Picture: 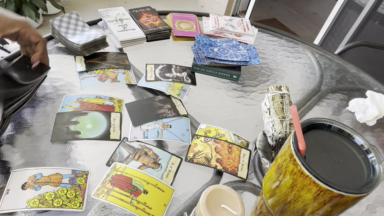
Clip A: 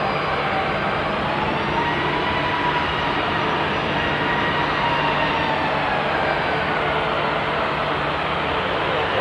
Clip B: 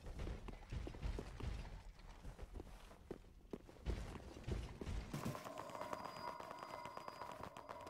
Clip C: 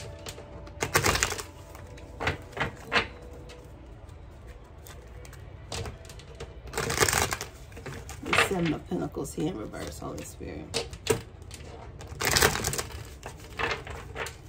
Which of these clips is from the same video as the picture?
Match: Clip C